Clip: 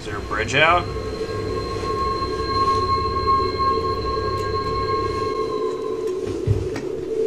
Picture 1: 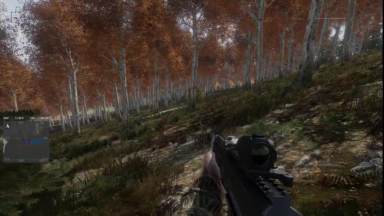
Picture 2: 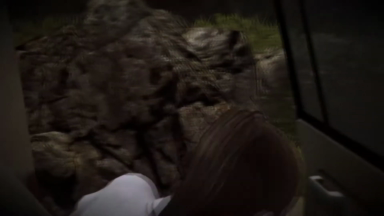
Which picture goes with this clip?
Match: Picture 2